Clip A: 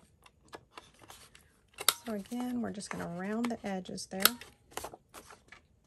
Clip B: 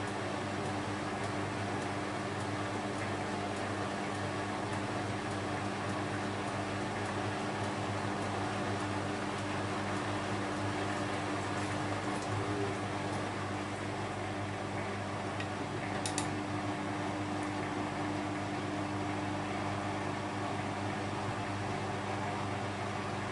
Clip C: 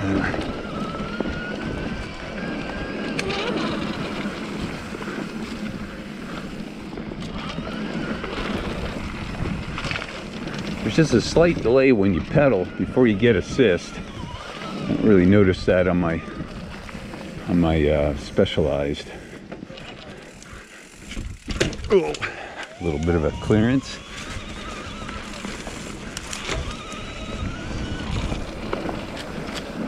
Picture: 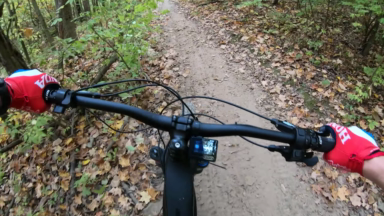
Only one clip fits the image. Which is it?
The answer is C